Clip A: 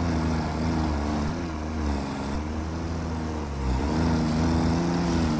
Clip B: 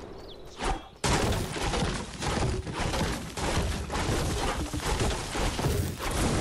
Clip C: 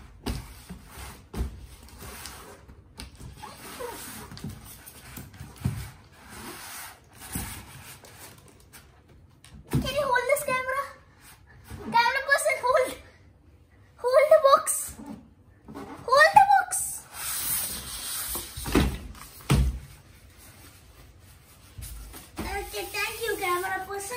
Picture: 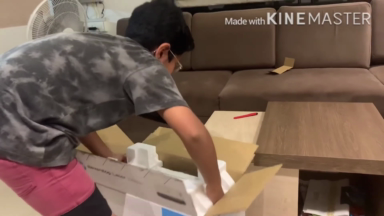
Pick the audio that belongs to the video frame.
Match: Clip C